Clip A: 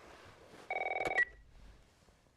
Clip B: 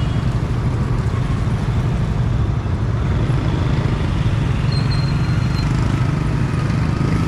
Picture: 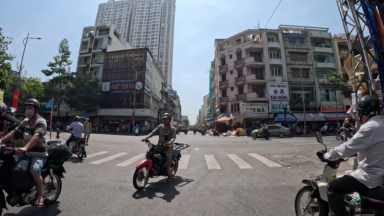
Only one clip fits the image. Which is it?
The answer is B